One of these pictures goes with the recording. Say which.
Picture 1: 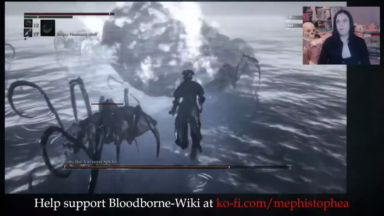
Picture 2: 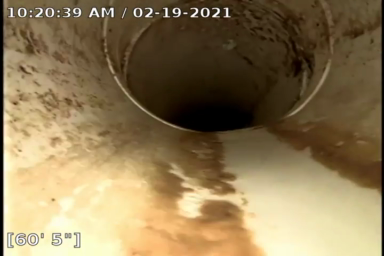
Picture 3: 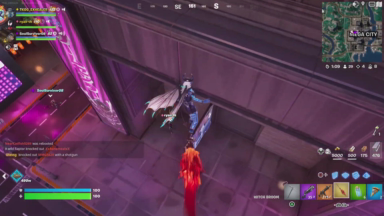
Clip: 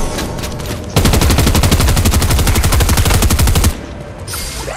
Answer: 3